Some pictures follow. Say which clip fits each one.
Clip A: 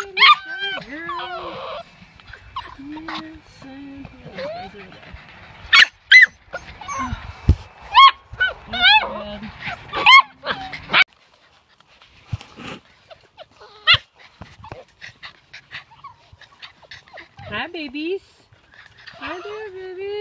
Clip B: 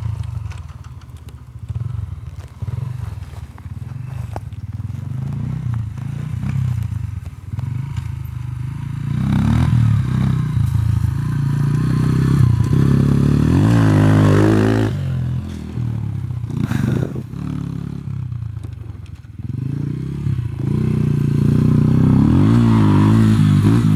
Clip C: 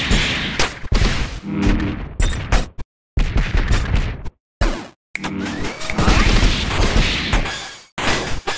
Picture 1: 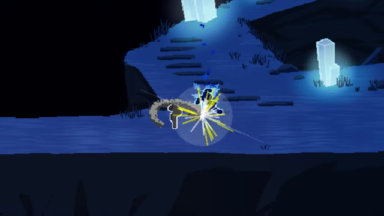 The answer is C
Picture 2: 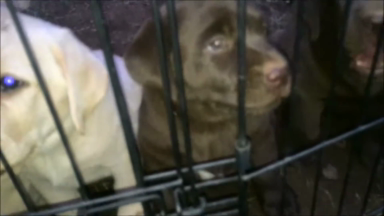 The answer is A